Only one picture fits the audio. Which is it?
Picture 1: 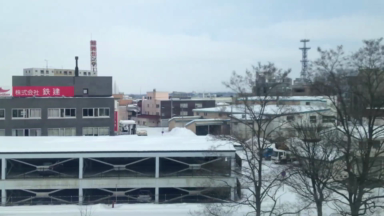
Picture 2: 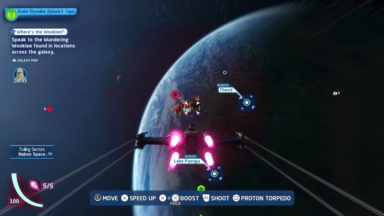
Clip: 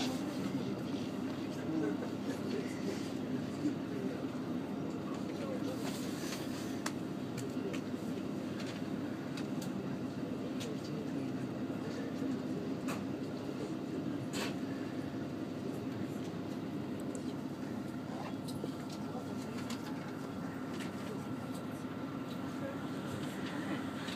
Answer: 1